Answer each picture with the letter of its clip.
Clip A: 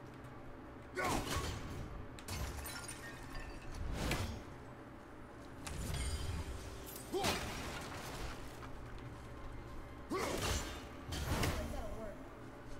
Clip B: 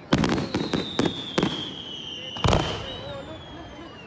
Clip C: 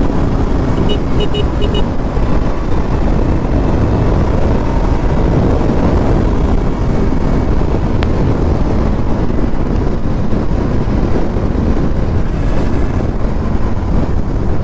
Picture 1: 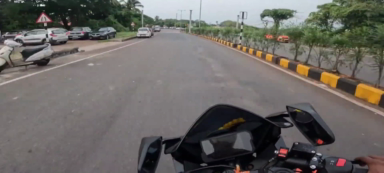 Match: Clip C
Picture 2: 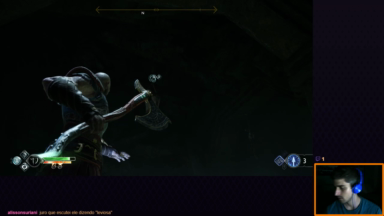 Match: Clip A